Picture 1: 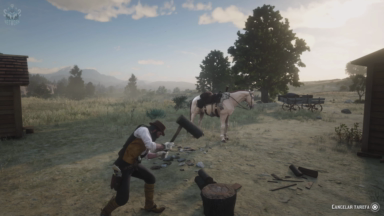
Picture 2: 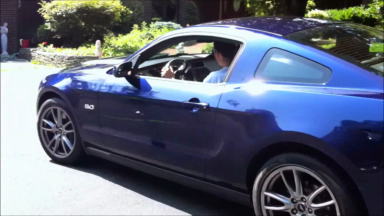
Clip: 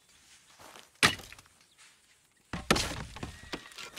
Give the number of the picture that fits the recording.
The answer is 1